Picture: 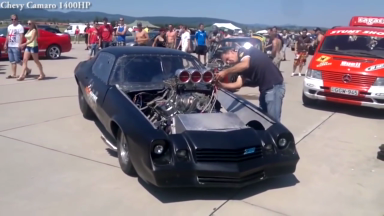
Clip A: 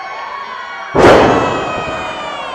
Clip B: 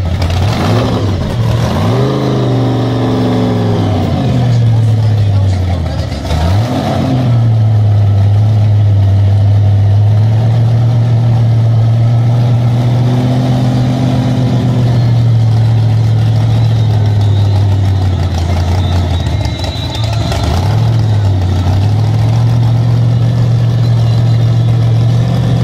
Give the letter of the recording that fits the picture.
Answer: B